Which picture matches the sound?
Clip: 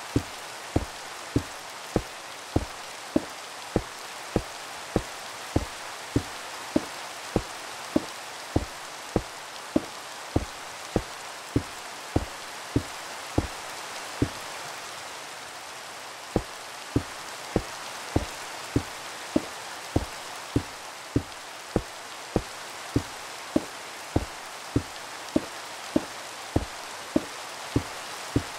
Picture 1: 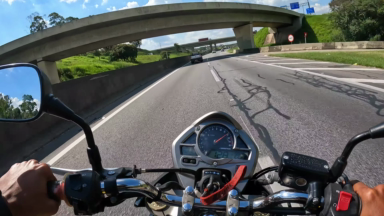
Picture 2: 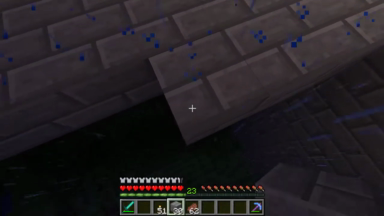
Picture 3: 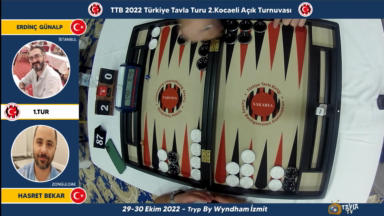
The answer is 2